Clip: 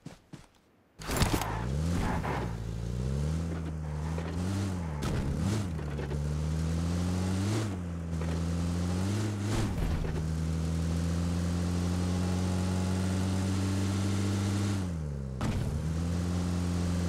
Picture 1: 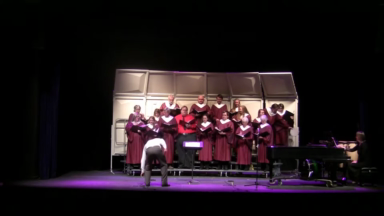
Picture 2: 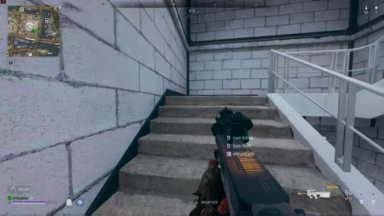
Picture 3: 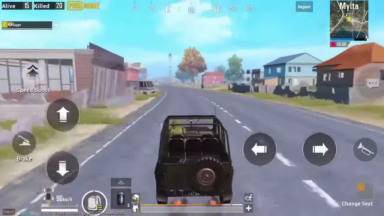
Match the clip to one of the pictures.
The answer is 3